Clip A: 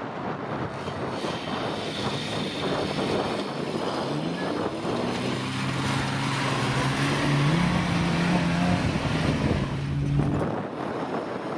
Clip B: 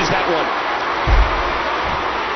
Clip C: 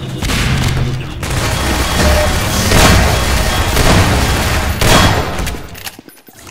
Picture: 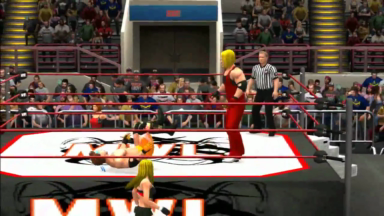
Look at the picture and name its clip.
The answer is B